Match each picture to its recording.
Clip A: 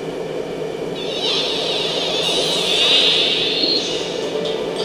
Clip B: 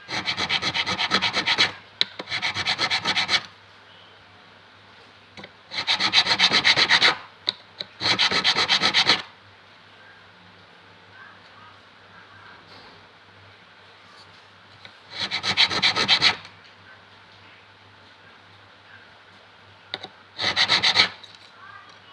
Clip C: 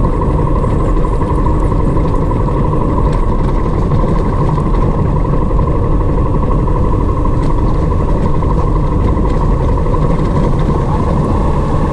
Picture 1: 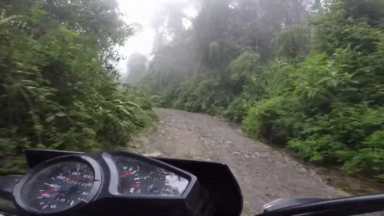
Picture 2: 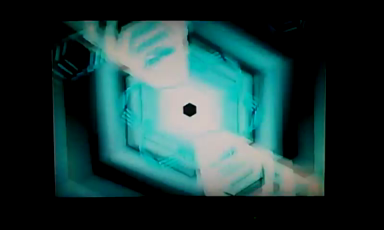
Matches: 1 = C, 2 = A